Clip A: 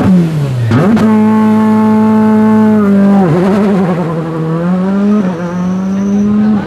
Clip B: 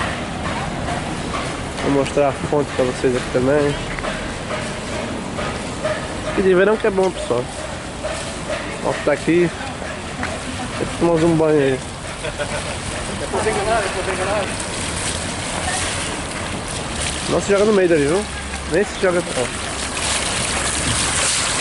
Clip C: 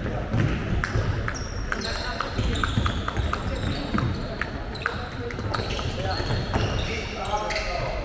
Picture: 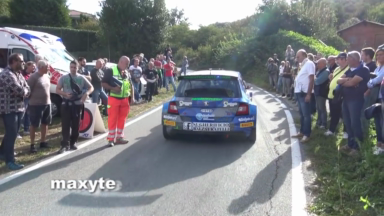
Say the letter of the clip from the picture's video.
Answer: A